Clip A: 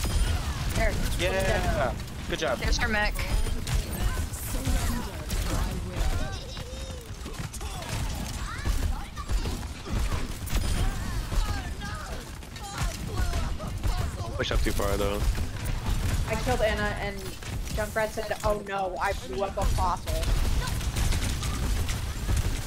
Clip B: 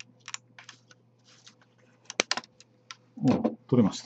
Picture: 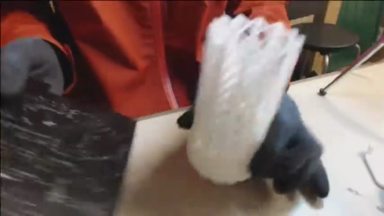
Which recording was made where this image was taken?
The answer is B